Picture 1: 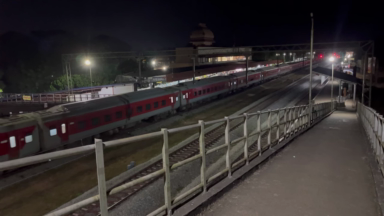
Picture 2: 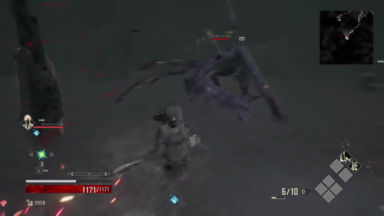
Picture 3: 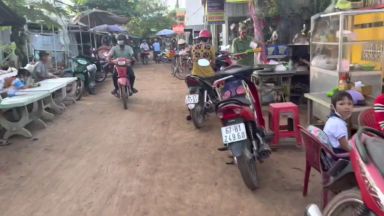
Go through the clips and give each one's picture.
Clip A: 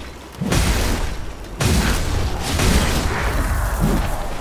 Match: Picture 2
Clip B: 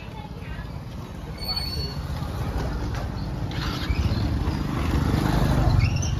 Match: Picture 3